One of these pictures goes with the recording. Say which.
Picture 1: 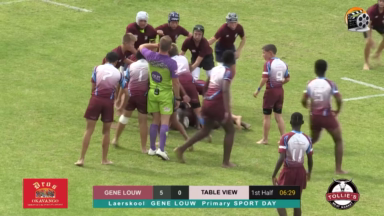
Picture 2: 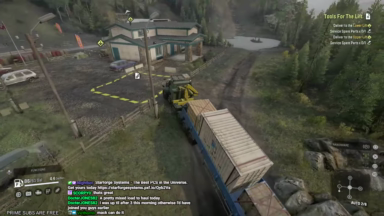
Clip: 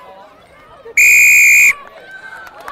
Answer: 1